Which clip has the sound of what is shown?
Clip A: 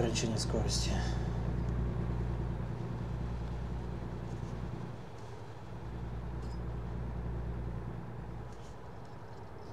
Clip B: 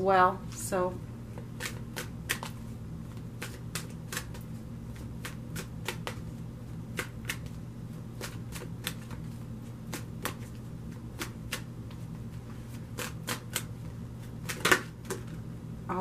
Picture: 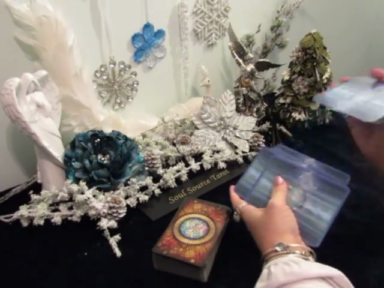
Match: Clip B